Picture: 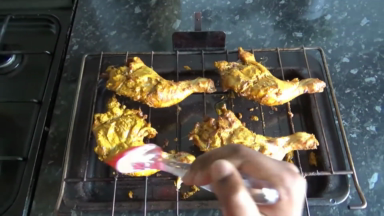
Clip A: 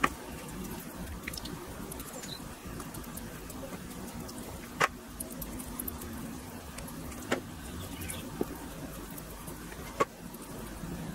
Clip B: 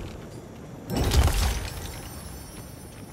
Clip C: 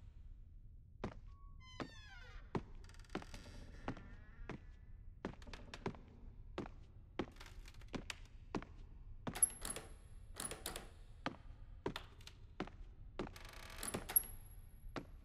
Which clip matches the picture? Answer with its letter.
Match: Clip A